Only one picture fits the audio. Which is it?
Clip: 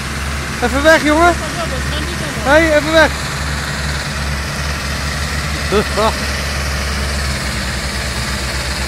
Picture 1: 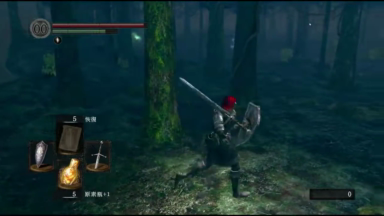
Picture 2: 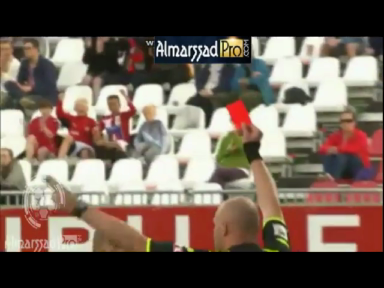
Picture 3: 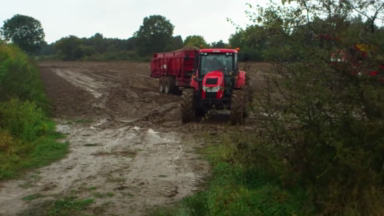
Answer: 3